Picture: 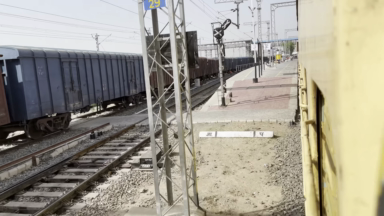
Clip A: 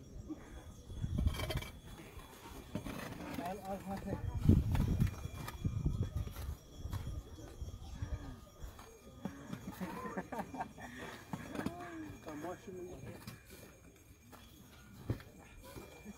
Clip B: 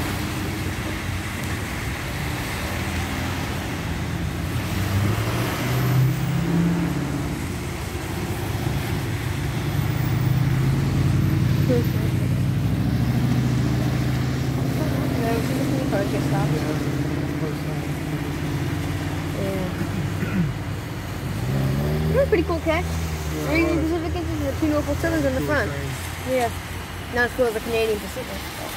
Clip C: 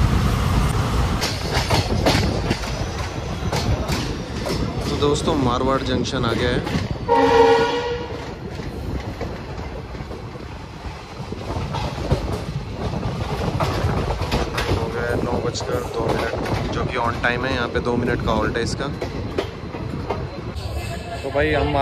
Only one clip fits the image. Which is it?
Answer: C